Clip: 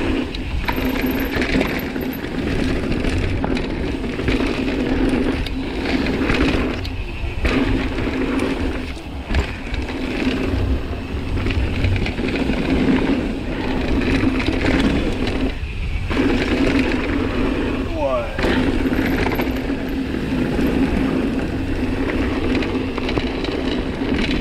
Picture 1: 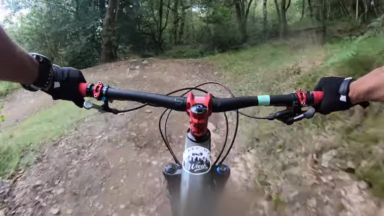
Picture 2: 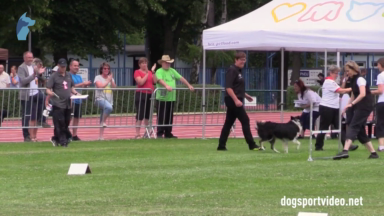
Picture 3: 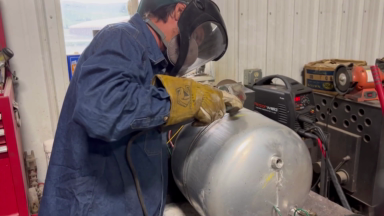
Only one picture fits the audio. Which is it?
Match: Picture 1